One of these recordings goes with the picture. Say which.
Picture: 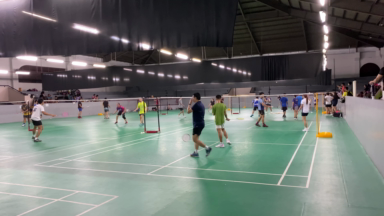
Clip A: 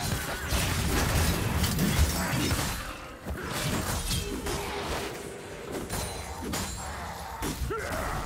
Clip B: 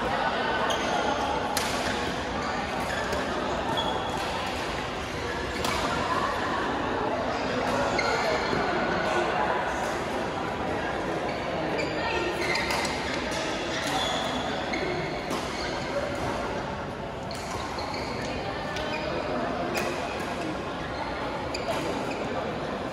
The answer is B